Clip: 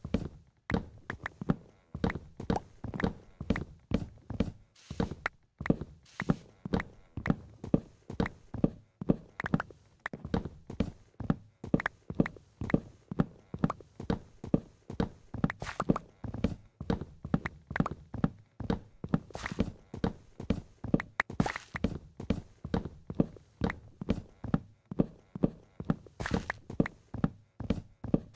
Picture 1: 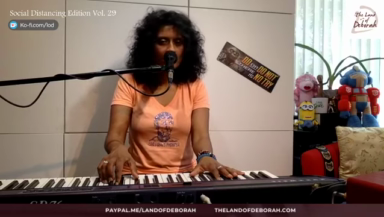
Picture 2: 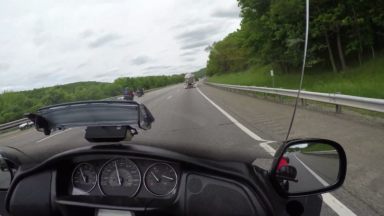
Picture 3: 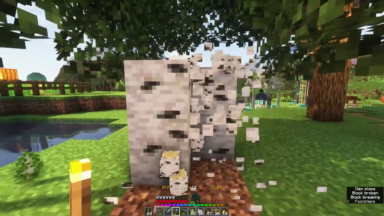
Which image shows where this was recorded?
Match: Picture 3